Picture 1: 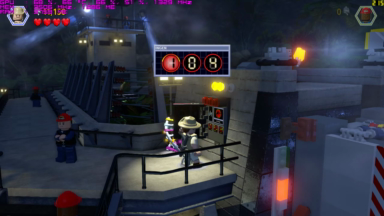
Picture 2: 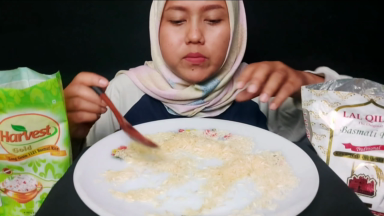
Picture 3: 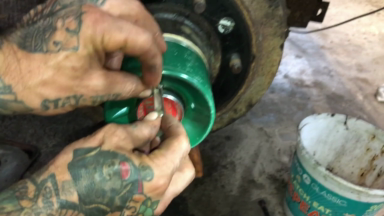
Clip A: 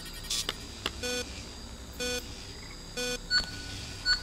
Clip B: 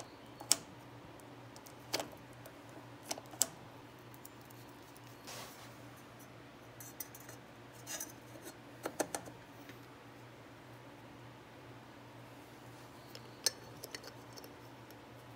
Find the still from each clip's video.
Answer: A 1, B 3